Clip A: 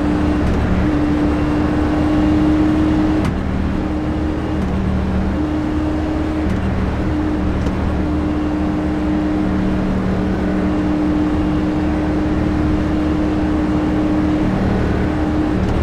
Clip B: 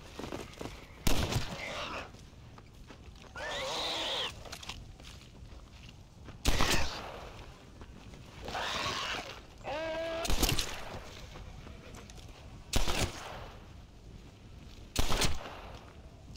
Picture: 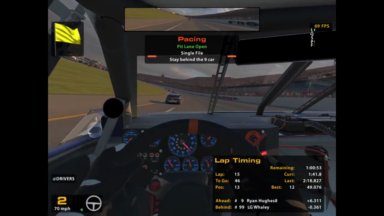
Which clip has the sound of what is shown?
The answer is A